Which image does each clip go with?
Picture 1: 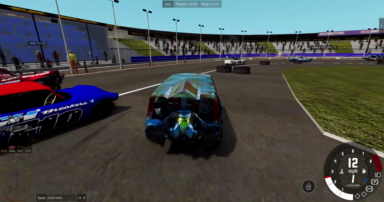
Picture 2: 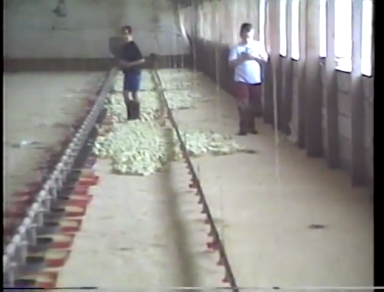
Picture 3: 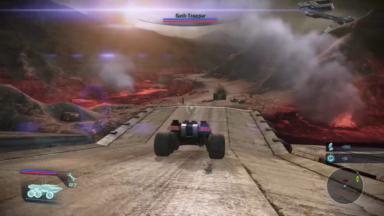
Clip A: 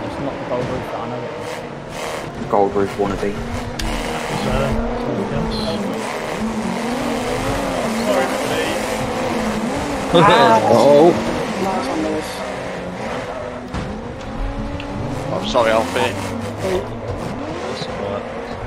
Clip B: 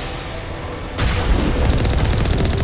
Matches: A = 1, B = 3